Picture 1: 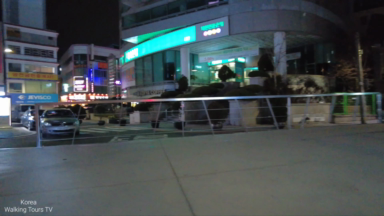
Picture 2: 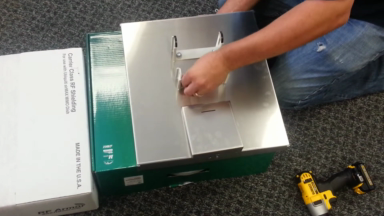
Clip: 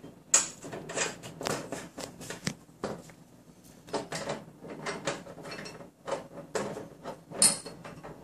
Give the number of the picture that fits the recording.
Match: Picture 2